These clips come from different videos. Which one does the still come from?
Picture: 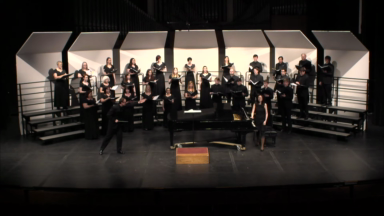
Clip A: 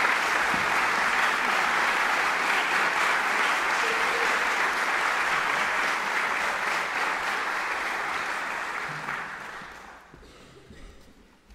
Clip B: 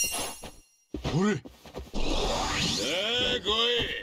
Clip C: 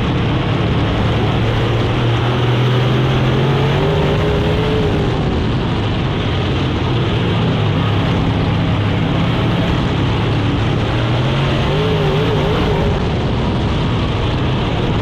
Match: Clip A